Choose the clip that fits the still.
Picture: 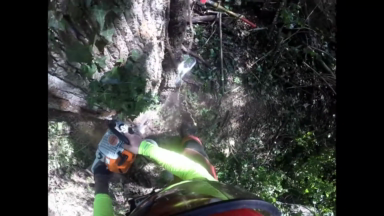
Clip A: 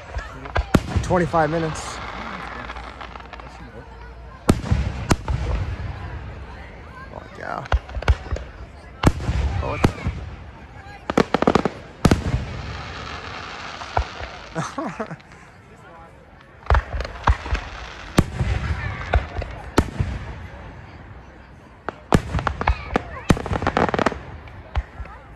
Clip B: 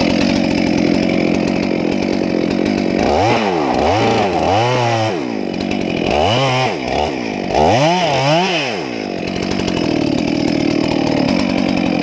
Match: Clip B